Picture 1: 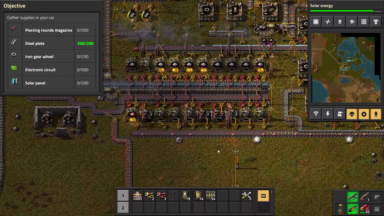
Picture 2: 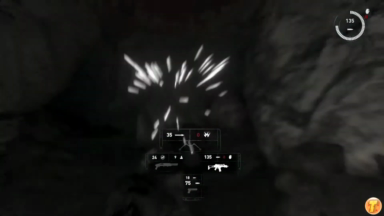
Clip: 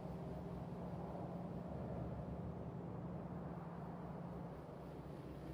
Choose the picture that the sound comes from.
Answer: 1